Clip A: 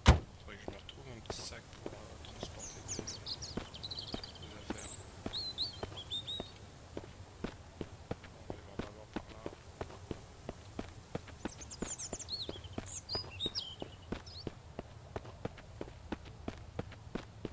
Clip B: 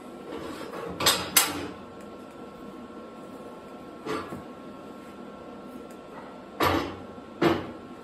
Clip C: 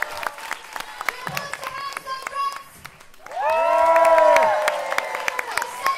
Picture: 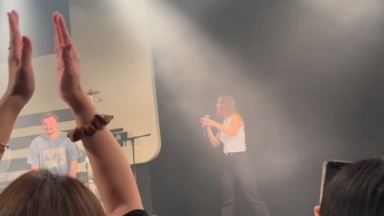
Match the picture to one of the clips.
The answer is C